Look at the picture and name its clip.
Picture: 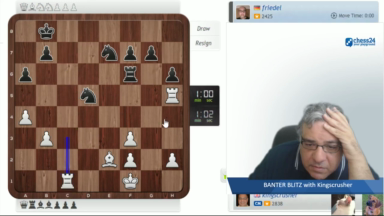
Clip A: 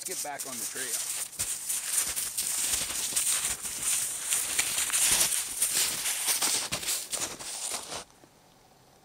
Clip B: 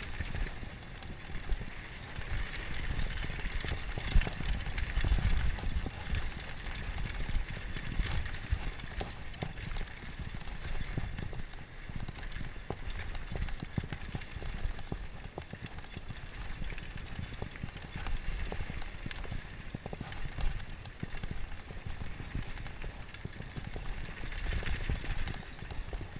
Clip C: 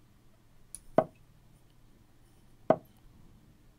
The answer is C